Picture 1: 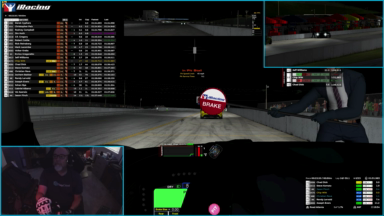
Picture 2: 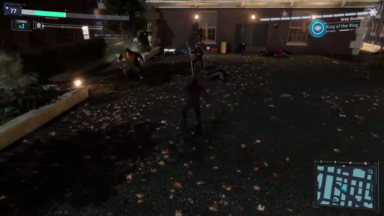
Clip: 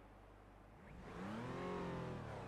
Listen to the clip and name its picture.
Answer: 1